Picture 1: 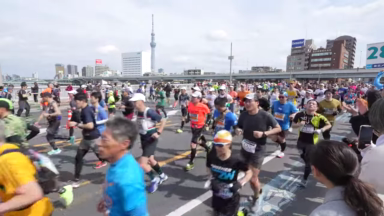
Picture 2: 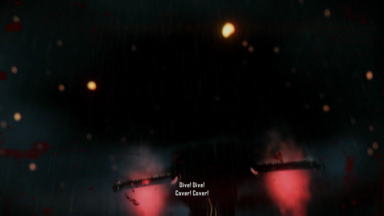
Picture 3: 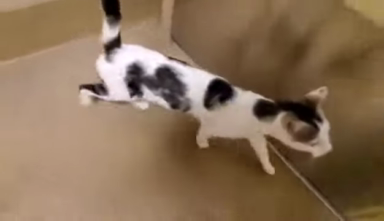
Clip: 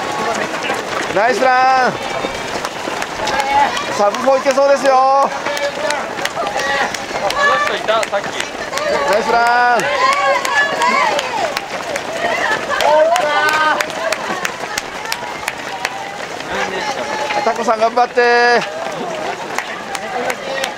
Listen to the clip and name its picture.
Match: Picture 1